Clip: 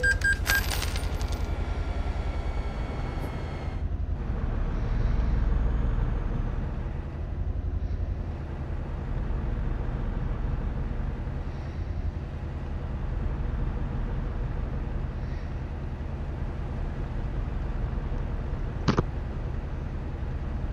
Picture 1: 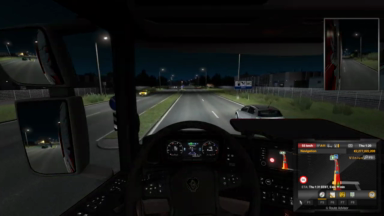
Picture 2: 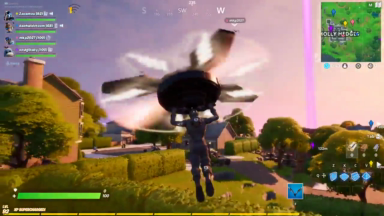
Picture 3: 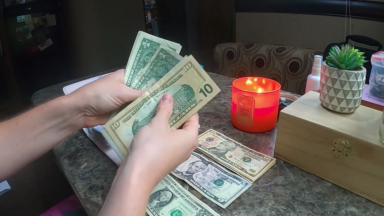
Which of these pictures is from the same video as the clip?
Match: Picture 1